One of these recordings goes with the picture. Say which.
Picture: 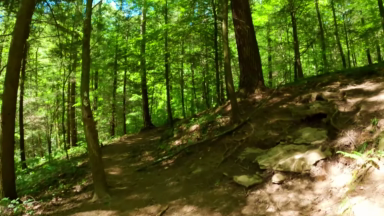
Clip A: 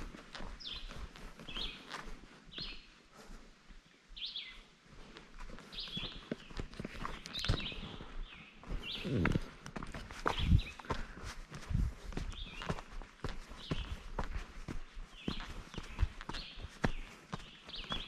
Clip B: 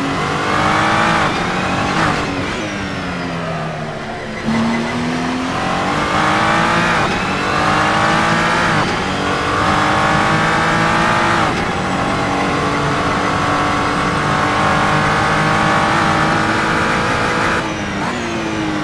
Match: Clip A